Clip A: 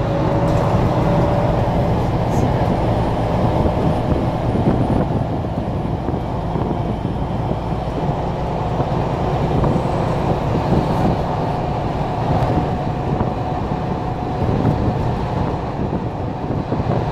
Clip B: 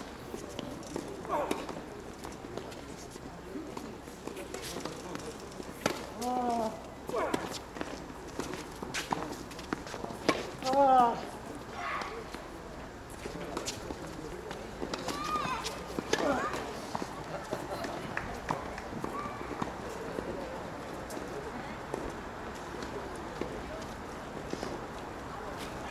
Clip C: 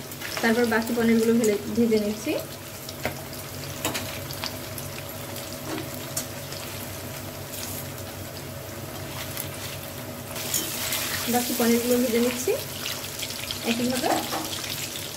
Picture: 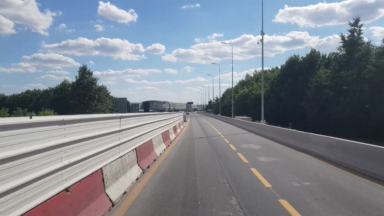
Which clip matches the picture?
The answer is A